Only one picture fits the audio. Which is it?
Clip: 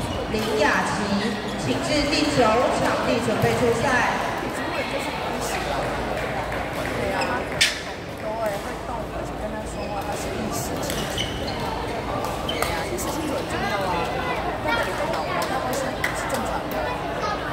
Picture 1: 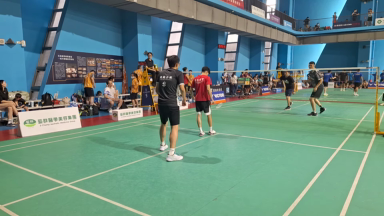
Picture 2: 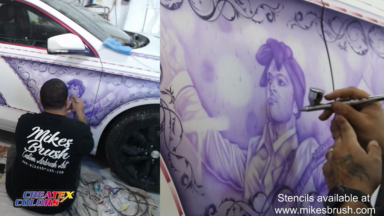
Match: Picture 1